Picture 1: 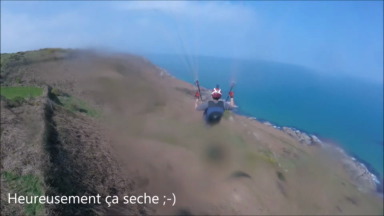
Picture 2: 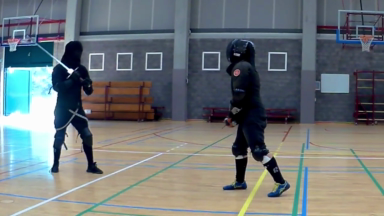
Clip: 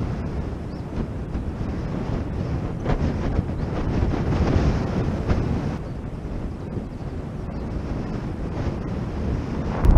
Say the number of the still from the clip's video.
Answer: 1